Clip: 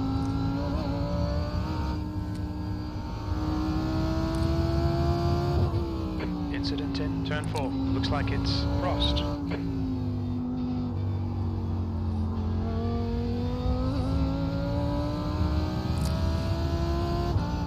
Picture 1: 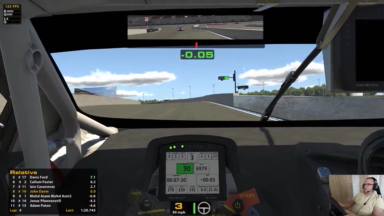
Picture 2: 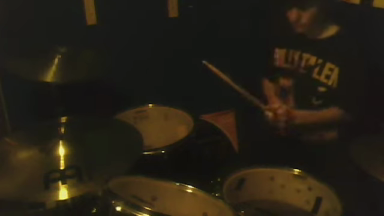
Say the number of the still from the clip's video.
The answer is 1